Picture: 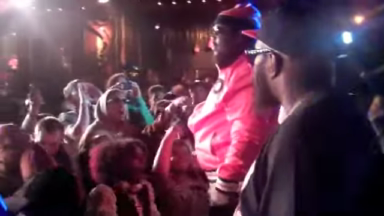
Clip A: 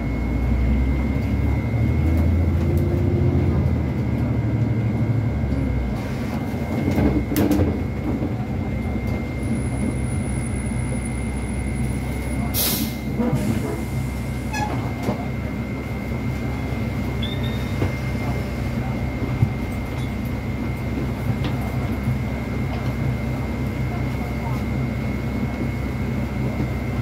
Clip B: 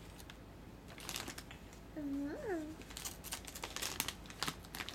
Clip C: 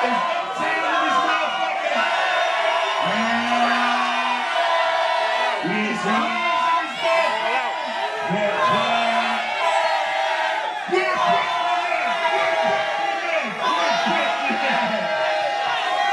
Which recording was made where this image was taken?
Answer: C